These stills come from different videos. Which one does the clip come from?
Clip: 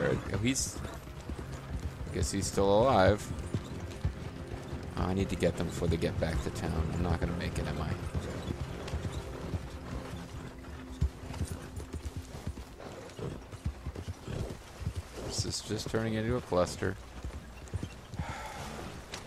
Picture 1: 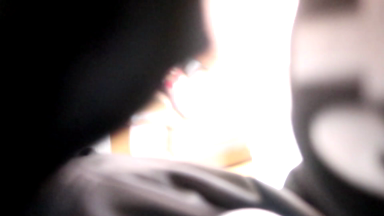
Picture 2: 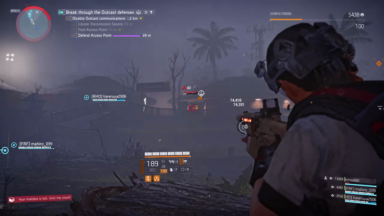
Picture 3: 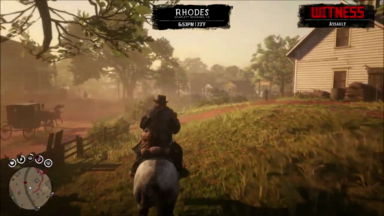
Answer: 3